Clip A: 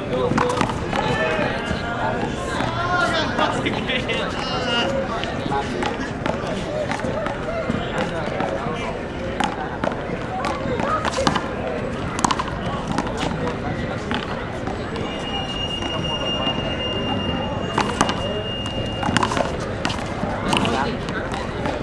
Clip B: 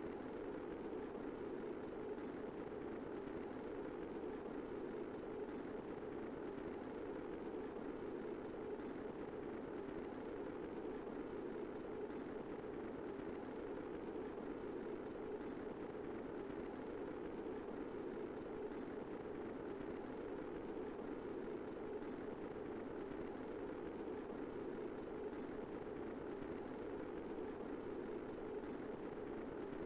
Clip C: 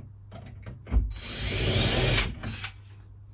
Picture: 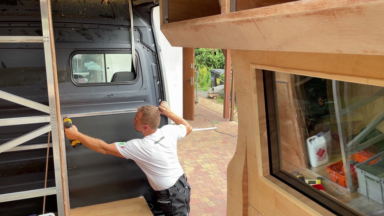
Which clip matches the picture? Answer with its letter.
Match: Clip C